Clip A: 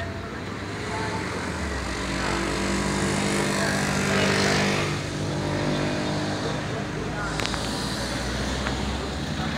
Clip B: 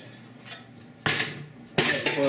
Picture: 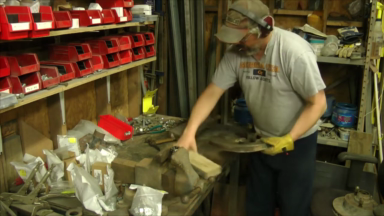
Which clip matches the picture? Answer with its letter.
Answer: B